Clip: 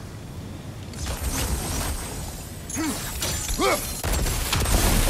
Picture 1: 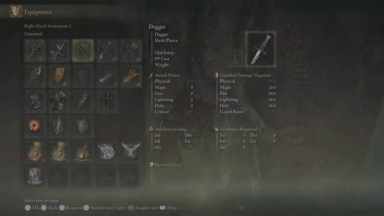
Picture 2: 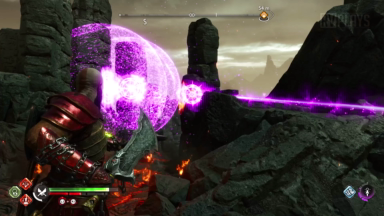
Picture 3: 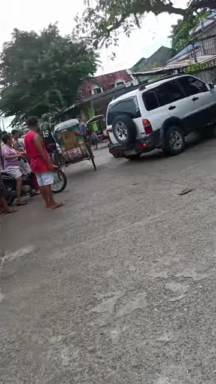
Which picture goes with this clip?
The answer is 2